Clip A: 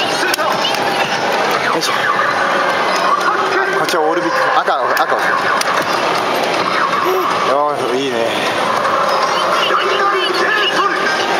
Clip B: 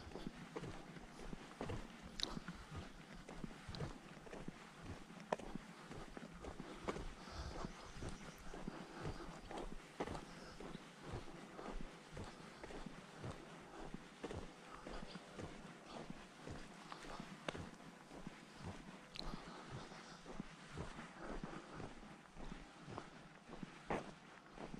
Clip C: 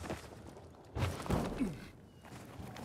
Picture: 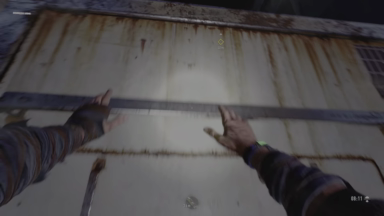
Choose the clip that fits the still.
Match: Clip C